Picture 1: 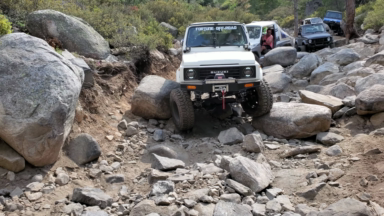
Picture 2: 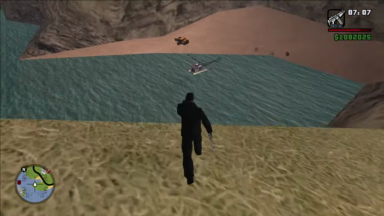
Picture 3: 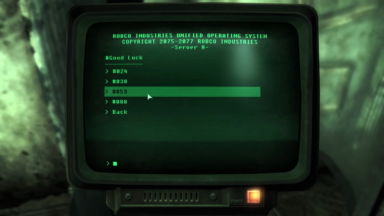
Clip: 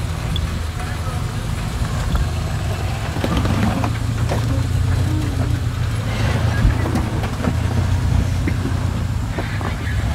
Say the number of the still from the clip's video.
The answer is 1